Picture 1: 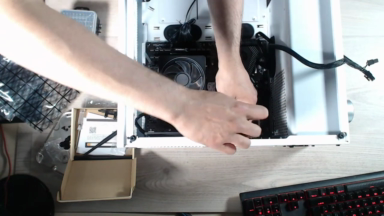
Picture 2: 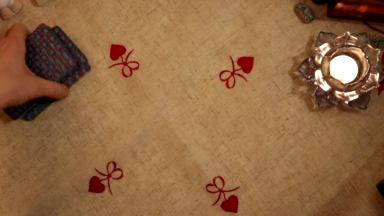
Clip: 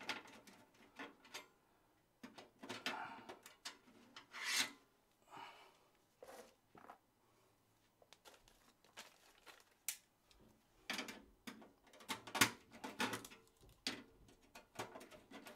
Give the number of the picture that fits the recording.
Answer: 1